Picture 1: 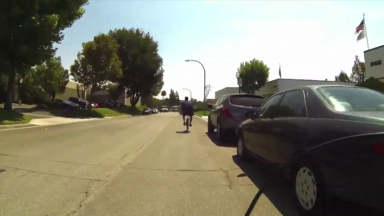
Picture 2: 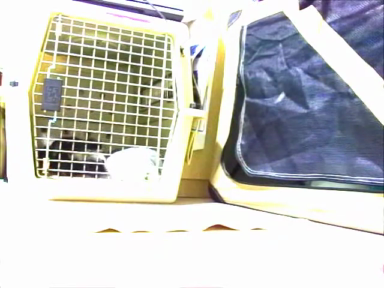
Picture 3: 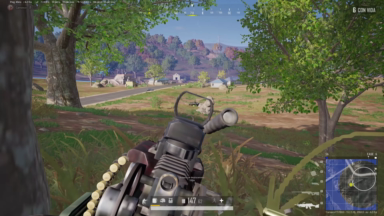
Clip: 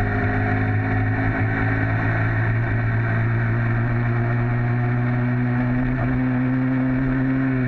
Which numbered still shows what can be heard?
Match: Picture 1